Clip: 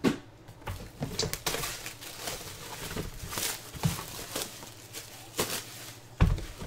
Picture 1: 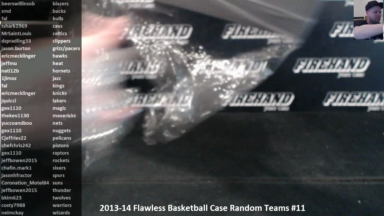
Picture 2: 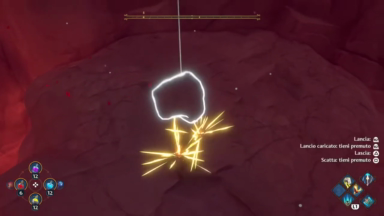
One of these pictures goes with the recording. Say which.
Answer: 1